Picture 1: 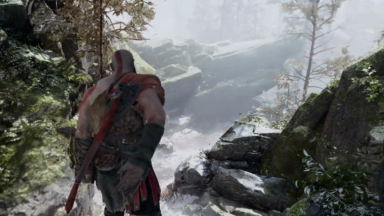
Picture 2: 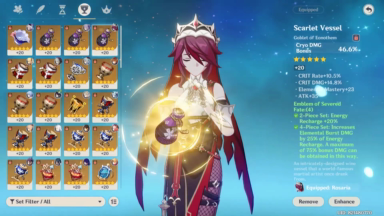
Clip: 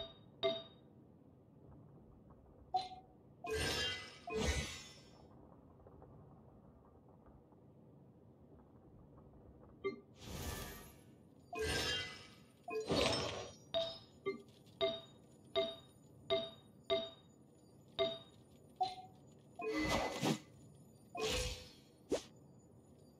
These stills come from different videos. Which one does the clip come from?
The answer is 2